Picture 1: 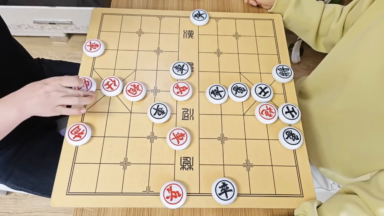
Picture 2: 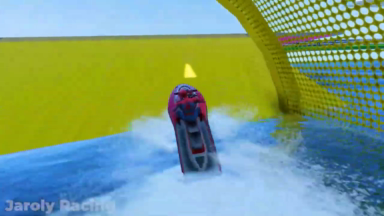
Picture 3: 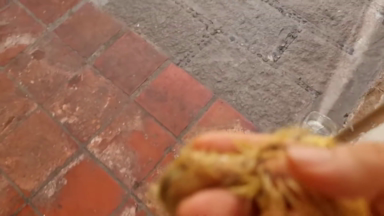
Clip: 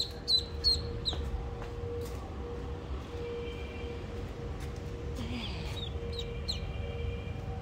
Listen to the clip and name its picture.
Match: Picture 3